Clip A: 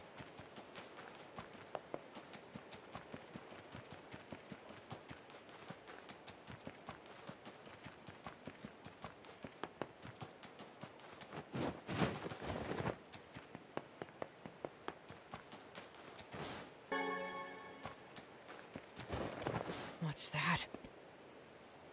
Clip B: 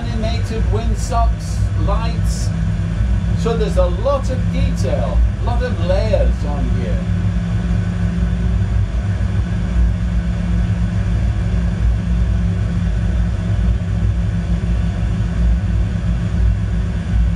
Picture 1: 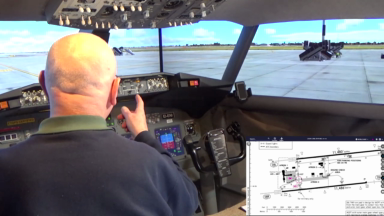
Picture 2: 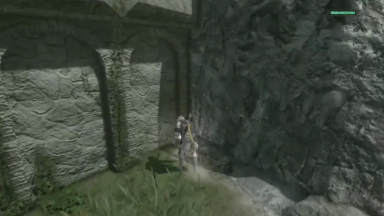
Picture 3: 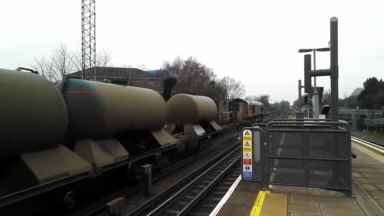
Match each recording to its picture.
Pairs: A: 2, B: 1